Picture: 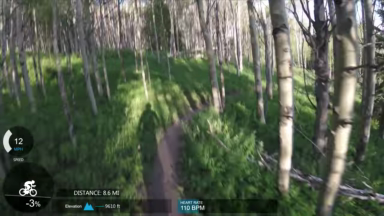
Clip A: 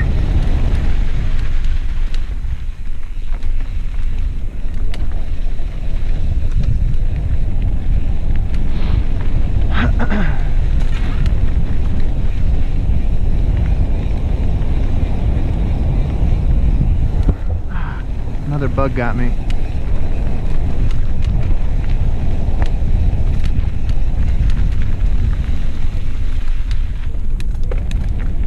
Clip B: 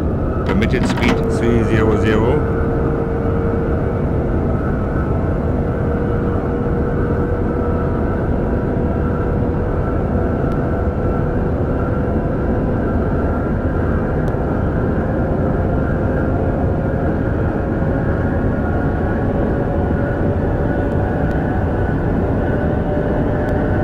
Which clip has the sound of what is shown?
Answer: A